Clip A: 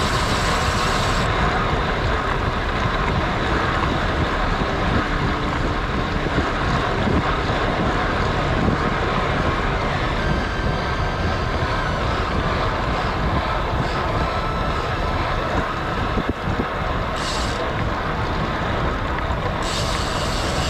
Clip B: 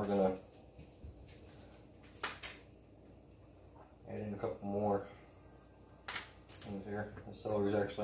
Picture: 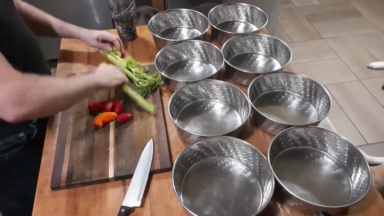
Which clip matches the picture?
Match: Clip B